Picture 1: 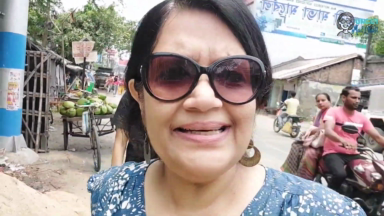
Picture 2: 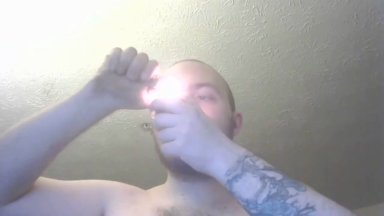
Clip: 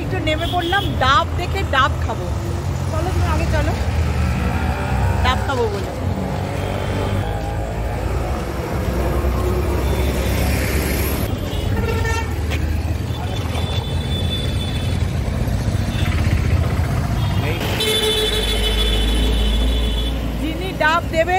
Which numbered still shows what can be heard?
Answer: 1